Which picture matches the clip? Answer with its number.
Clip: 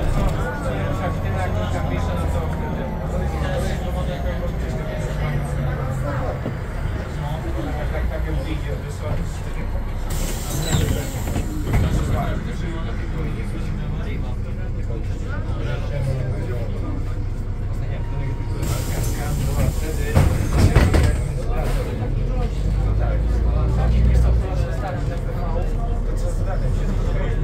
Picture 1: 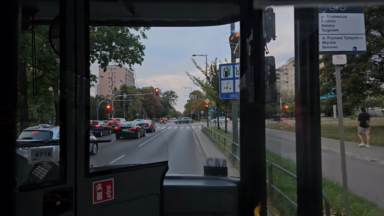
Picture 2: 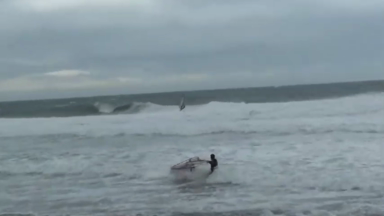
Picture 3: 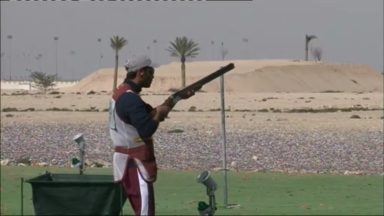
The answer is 1